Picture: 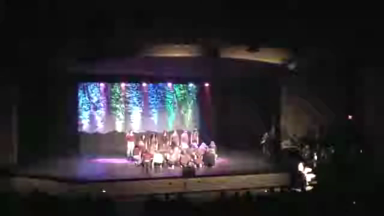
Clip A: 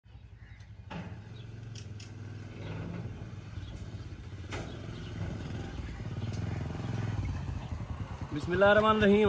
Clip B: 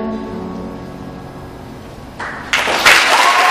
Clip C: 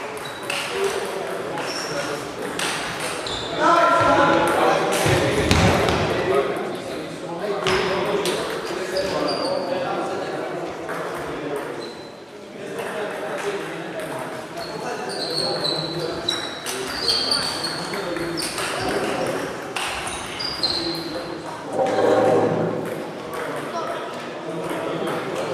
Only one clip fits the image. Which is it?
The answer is B